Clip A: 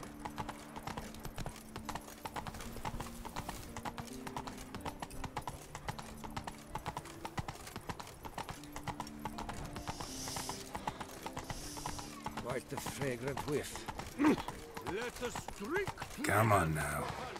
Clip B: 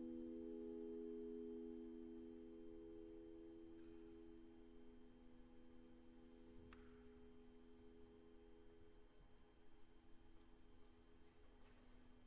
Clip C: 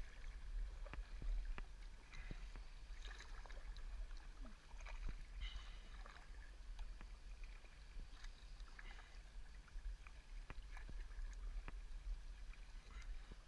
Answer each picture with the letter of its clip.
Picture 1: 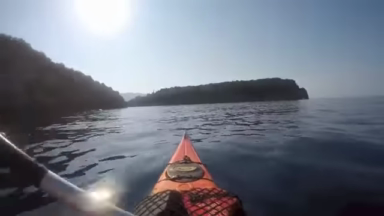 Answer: C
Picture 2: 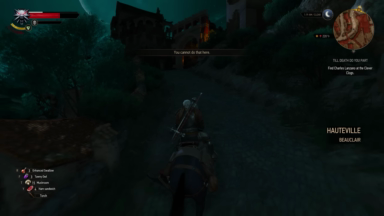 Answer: A